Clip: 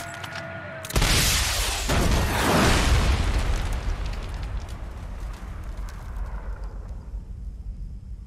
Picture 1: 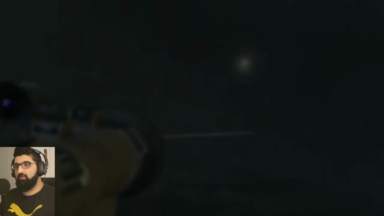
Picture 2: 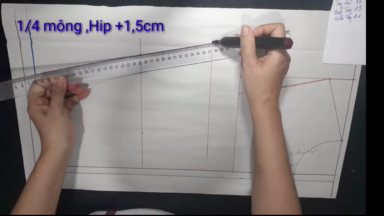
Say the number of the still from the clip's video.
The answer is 1